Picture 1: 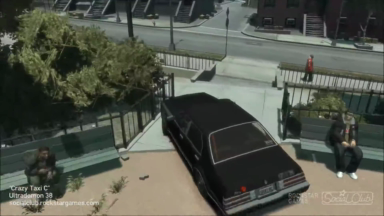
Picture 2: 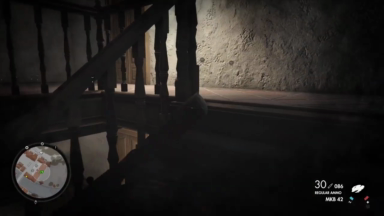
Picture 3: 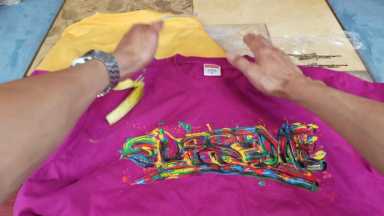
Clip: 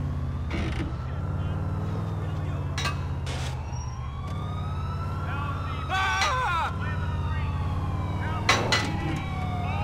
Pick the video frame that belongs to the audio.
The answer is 1